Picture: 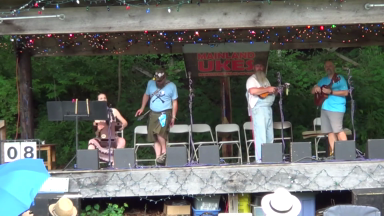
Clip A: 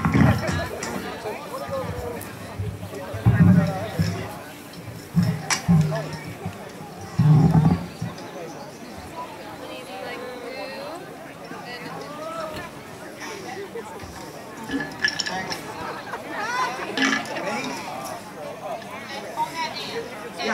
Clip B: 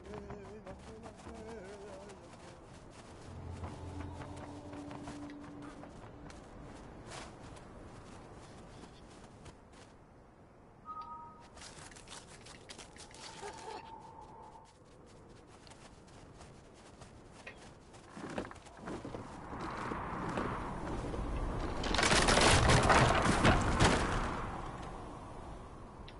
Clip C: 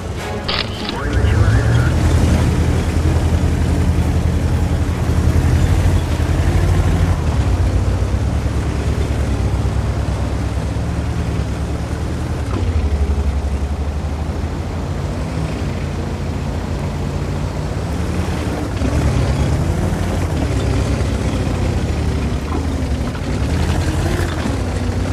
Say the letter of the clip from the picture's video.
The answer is A